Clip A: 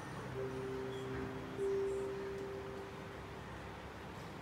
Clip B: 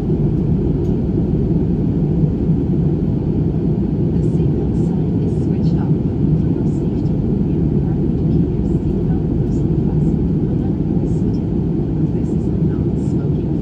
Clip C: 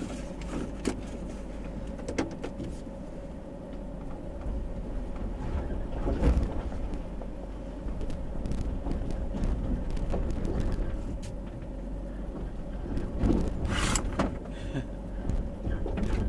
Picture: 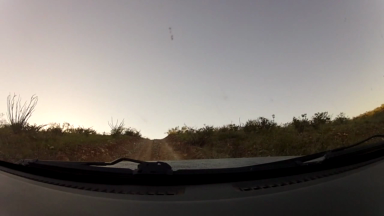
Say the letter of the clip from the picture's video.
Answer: C